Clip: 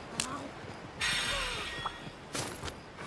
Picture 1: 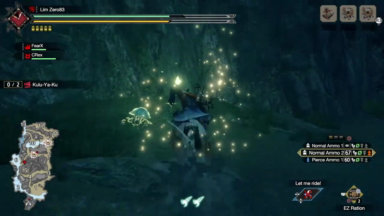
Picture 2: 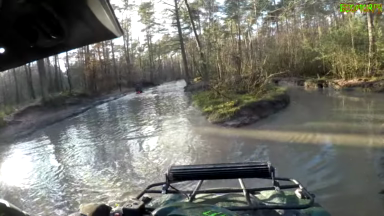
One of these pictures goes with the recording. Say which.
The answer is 1